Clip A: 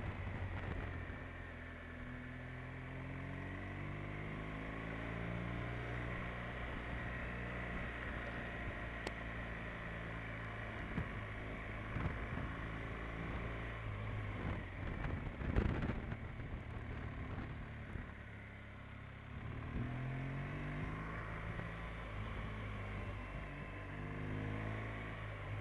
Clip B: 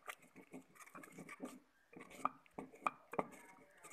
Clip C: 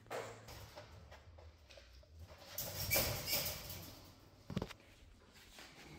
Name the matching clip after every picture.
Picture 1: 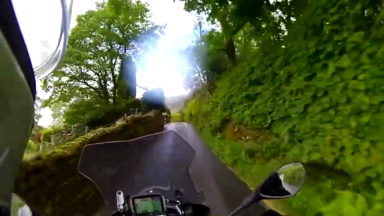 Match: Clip A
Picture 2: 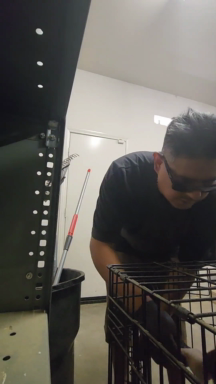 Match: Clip C